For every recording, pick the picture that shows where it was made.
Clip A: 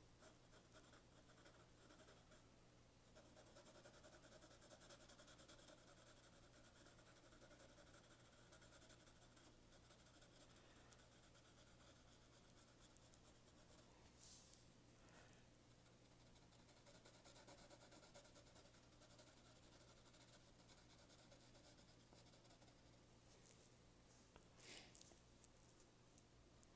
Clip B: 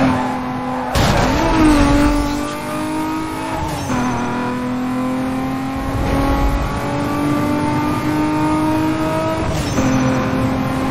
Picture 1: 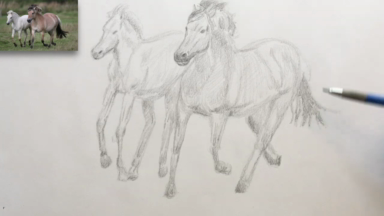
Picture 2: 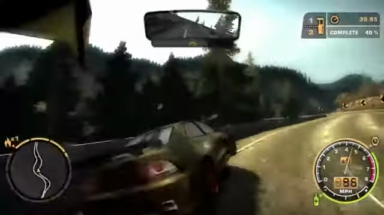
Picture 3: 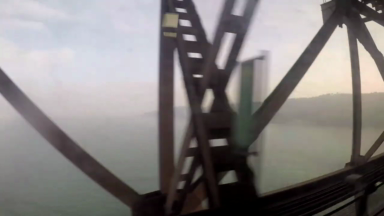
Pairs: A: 1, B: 2